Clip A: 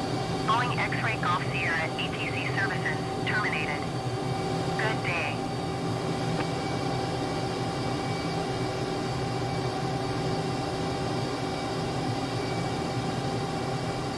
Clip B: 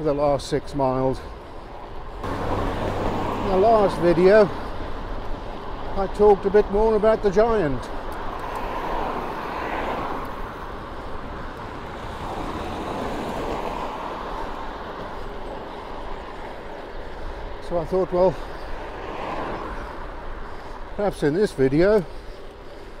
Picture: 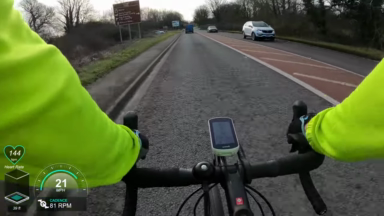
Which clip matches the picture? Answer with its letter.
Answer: B